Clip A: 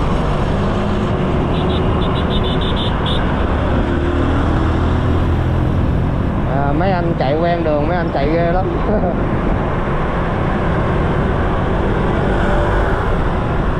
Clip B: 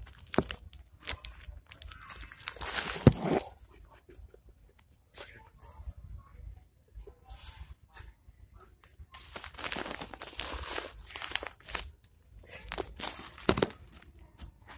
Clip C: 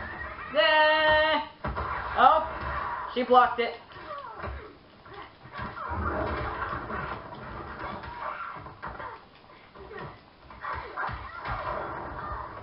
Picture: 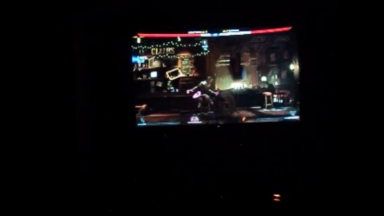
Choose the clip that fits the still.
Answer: C